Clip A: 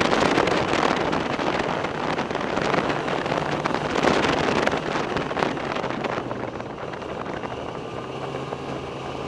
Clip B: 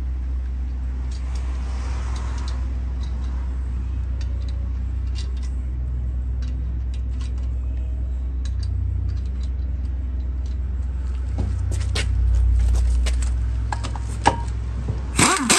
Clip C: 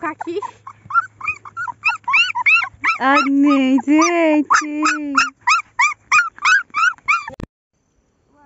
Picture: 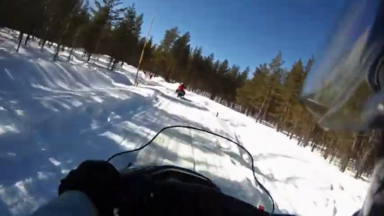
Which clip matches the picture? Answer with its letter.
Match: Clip A